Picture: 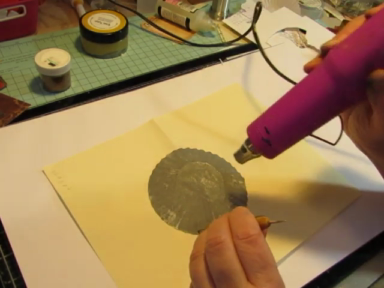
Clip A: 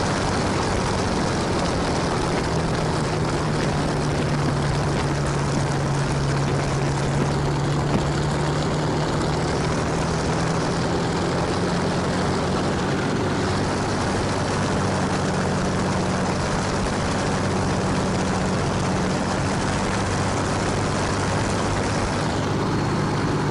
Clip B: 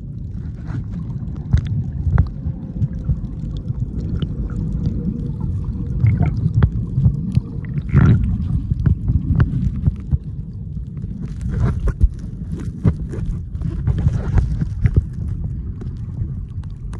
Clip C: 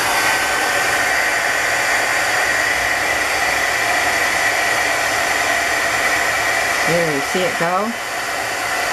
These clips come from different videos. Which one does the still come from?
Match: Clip C